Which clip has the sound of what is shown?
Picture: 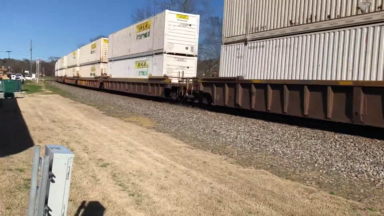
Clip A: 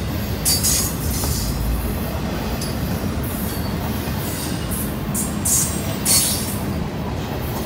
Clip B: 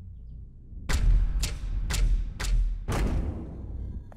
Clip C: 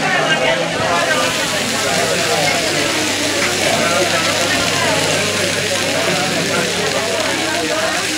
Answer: A